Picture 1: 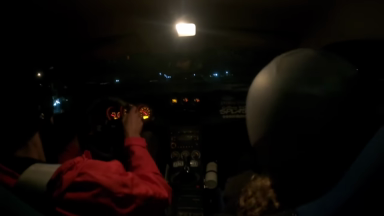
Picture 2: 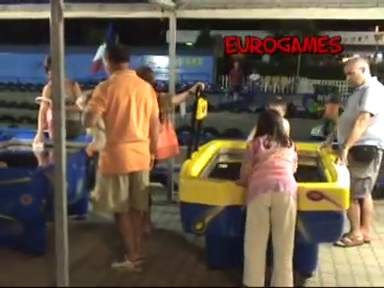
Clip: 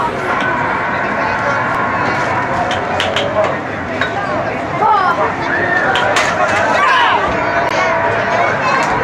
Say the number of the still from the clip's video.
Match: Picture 2